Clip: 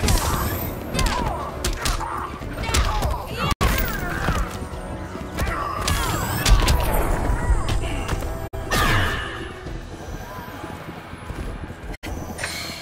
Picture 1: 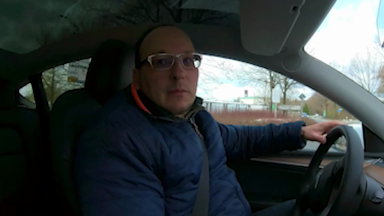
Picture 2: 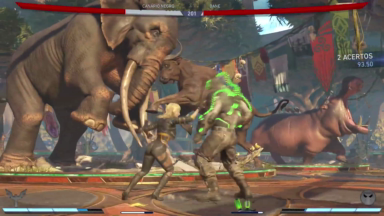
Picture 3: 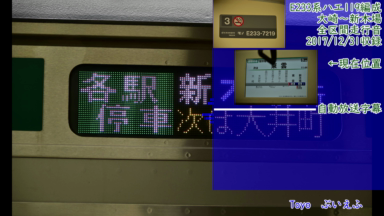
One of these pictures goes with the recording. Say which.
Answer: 2